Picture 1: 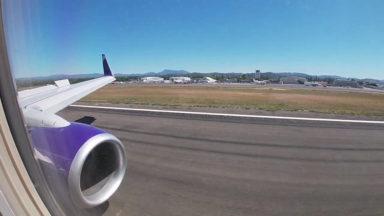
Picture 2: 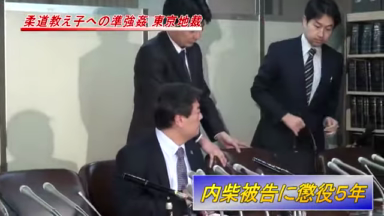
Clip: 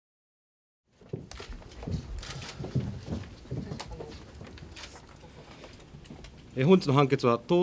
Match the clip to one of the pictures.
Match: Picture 2